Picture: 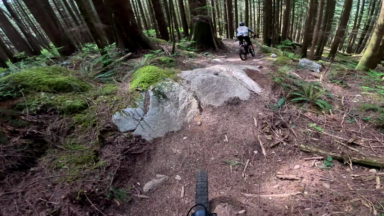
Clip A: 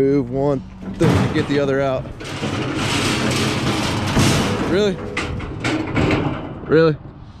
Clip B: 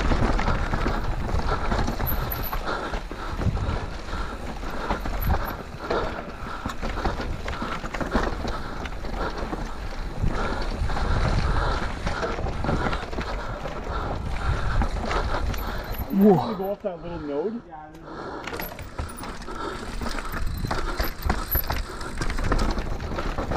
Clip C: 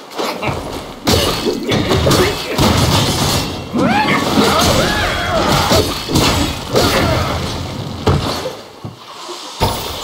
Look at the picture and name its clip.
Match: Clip B